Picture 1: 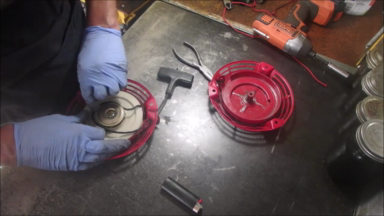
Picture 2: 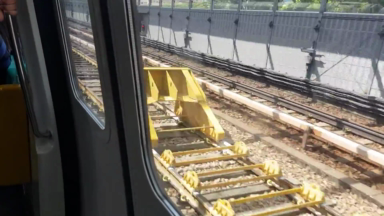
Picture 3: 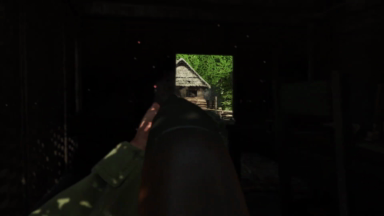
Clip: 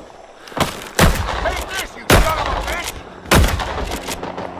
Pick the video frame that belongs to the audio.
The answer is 3